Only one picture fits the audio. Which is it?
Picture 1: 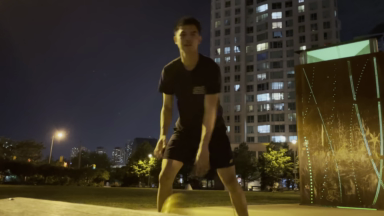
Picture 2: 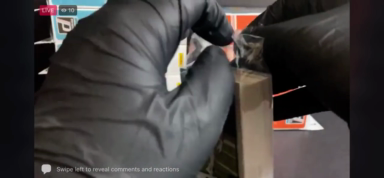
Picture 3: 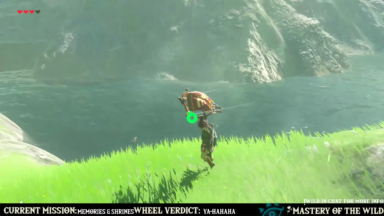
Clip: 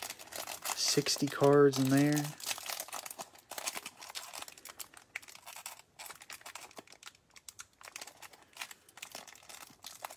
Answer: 2